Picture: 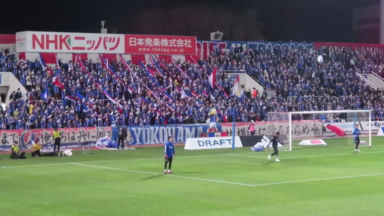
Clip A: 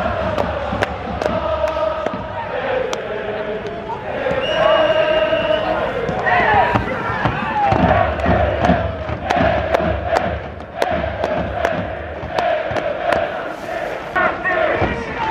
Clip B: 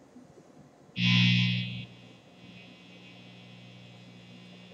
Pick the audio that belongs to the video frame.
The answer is A